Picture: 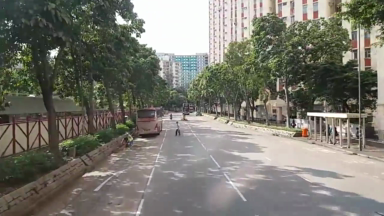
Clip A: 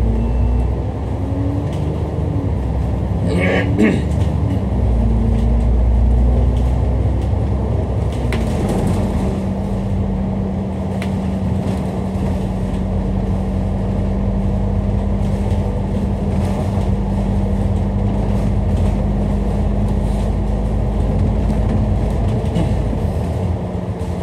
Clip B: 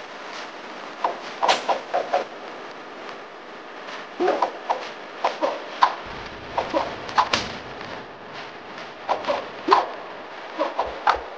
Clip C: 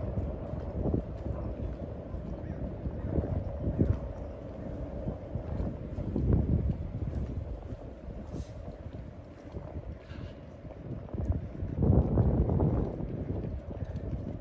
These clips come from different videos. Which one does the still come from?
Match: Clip A